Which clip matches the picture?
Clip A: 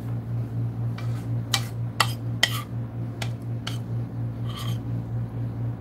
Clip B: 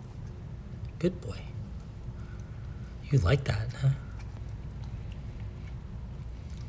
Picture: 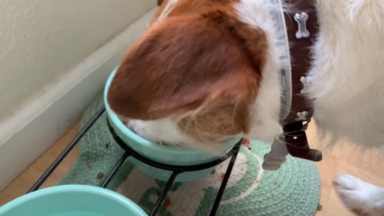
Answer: B